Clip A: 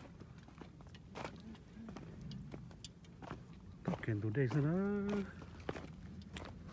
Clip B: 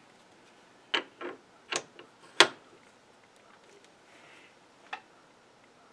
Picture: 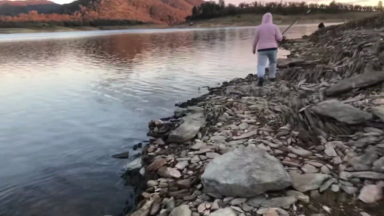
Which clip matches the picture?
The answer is A